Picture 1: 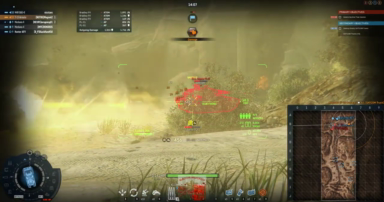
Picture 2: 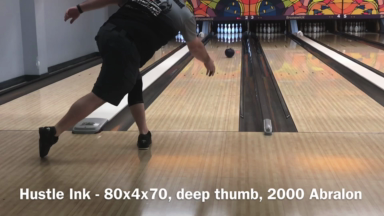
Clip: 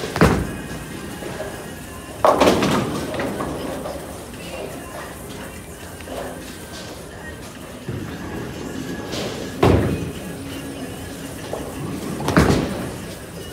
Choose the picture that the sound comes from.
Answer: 2